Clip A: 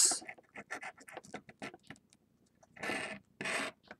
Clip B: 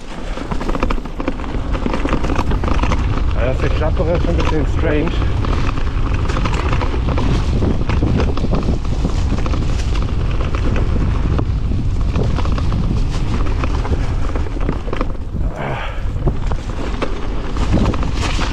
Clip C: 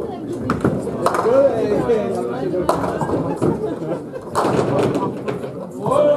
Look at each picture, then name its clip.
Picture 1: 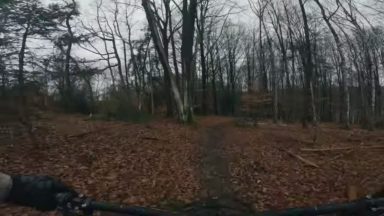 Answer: B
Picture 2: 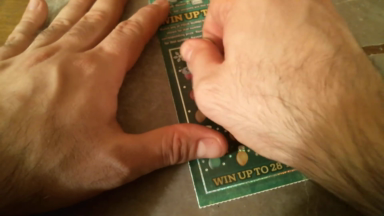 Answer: A